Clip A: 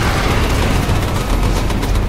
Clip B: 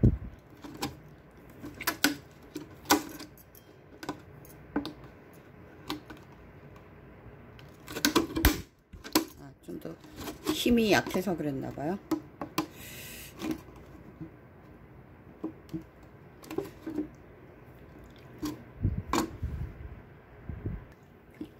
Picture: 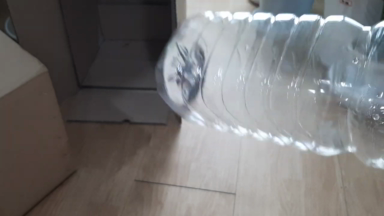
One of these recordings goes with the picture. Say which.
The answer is B